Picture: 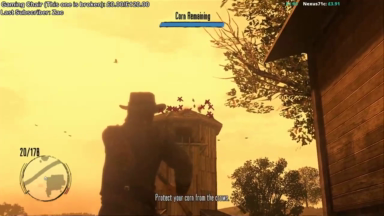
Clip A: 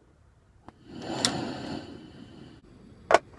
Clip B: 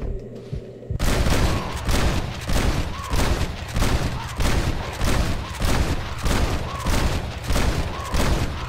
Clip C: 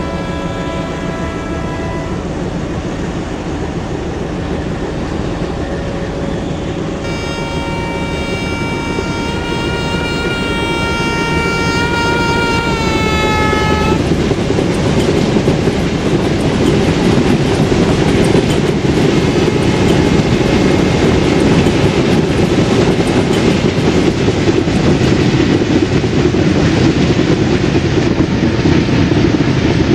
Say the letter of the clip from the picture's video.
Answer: B